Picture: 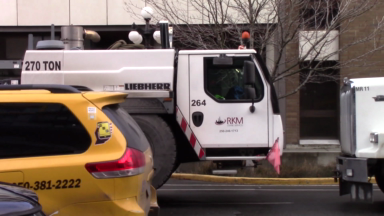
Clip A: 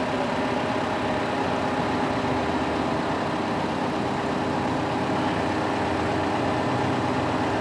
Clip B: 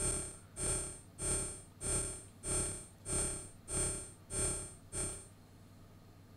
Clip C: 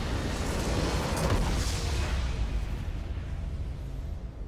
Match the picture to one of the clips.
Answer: A